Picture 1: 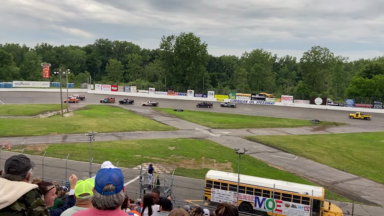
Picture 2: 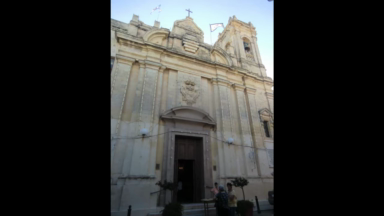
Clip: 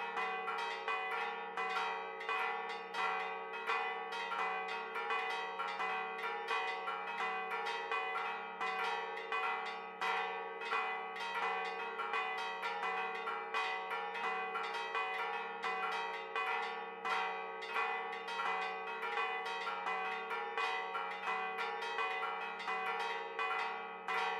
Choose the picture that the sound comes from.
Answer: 2